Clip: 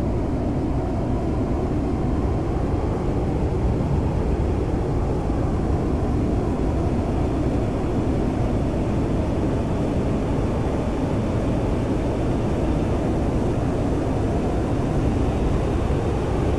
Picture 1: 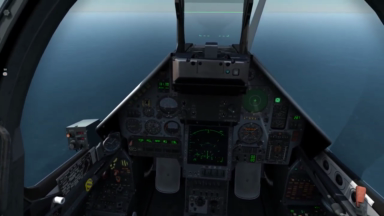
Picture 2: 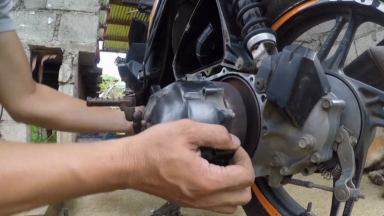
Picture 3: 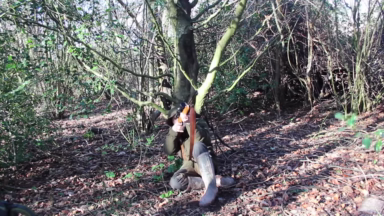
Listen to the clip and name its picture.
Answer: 1